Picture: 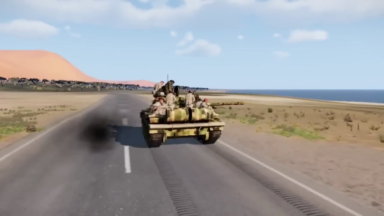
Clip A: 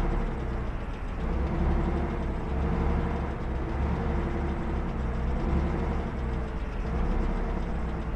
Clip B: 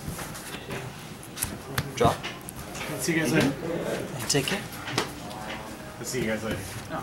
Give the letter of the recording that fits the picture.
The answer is A